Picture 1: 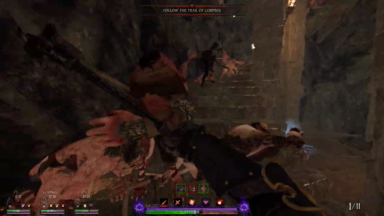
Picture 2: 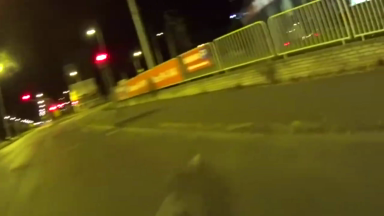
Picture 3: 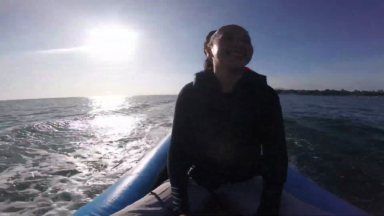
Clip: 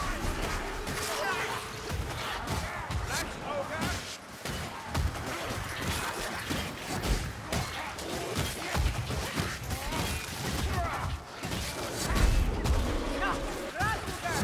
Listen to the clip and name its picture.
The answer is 1